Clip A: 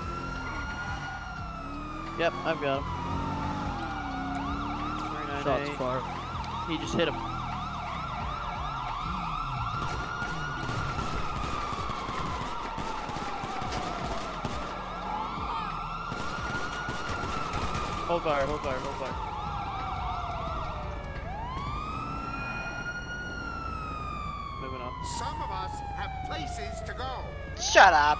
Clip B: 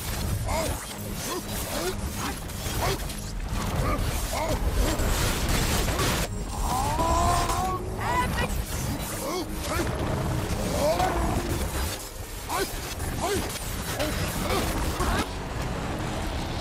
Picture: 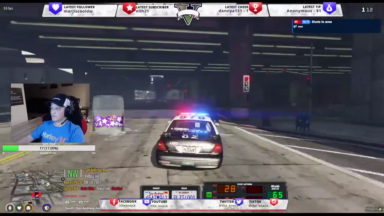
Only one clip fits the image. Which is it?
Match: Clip A